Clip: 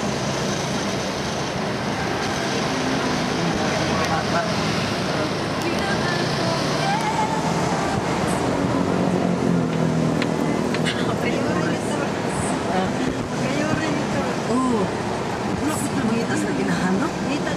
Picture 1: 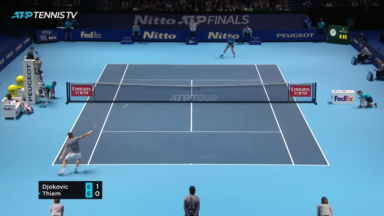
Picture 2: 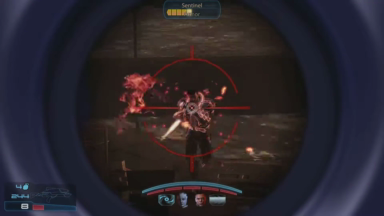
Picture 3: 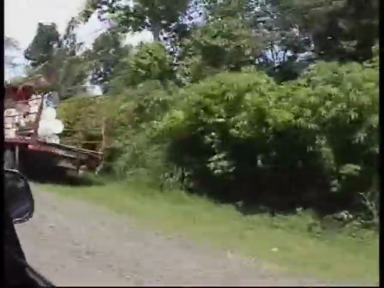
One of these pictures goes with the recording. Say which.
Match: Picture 3